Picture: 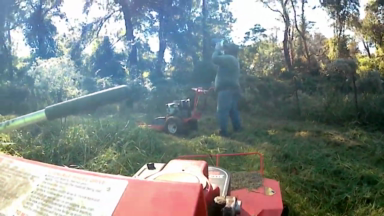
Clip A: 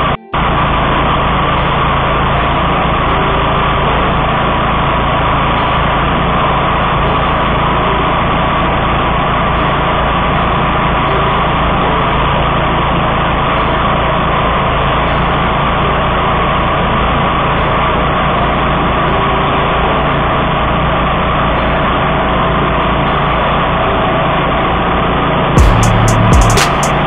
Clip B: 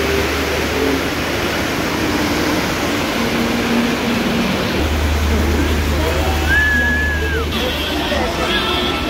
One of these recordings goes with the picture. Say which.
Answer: A